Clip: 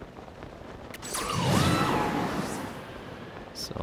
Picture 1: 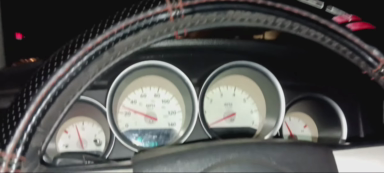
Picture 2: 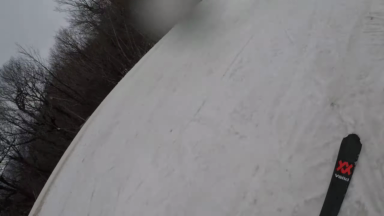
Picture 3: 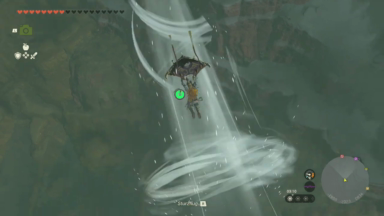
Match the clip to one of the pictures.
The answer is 3